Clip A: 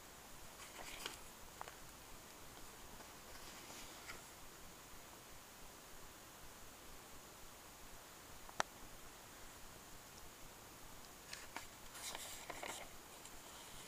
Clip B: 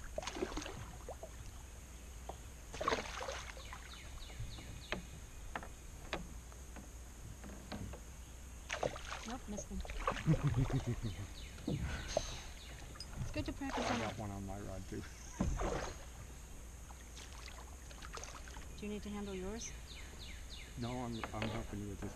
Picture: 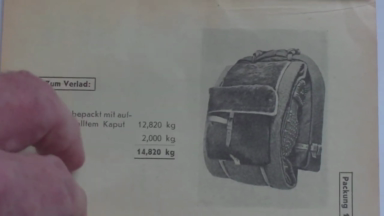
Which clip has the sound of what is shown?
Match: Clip A